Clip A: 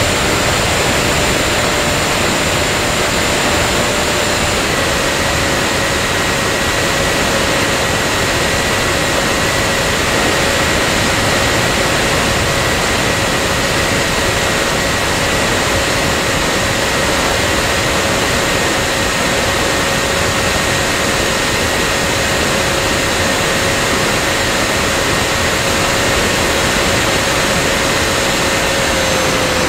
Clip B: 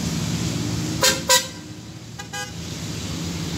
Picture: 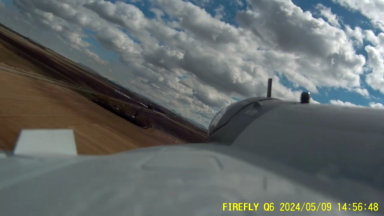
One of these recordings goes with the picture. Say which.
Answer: A